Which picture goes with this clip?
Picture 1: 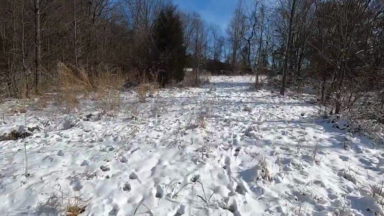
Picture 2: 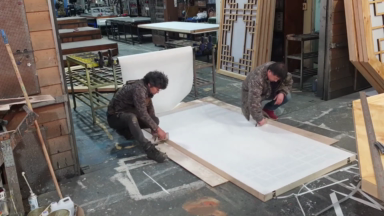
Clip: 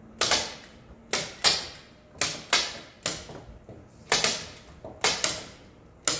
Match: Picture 2